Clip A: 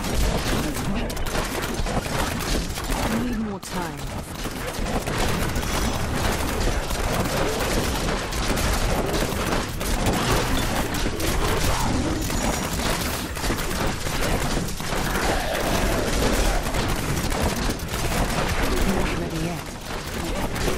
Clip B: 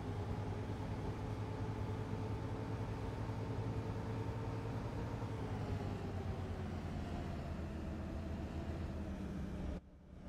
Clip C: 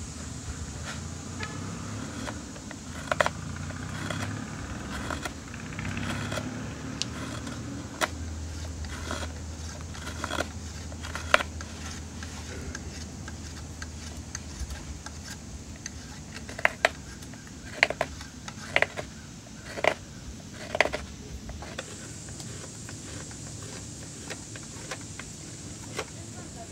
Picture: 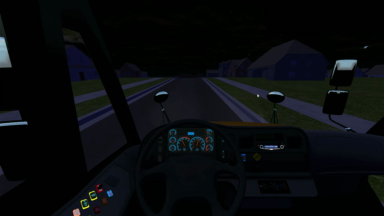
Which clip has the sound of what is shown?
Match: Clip B